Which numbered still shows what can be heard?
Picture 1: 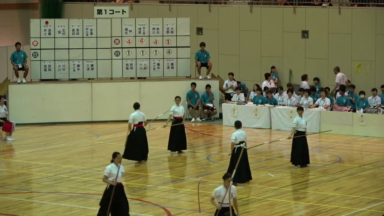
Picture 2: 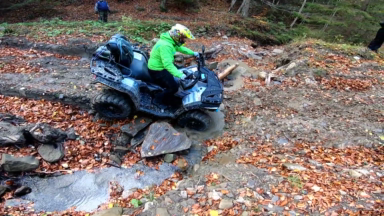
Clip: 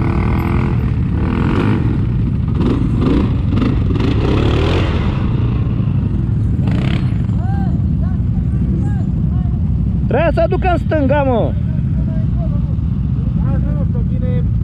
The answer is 2